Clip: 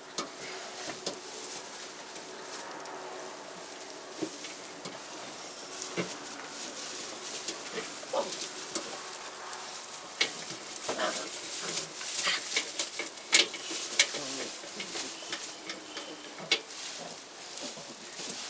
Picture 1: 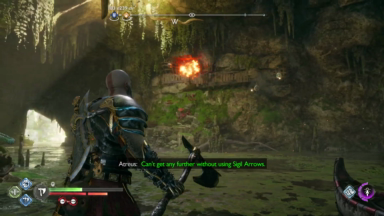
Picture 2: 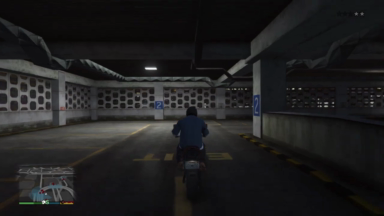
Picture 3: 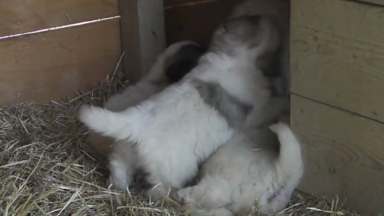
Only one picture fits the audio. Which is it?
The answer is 3